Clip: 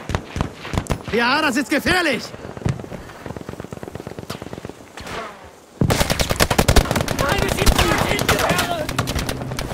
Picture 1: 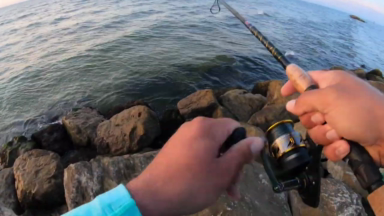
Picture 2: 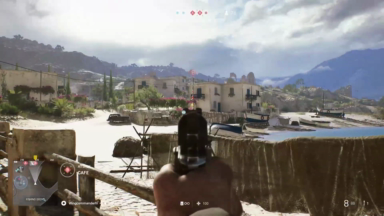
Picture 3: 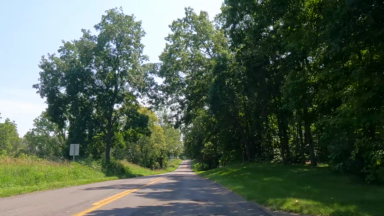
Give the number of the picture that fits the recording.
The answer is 2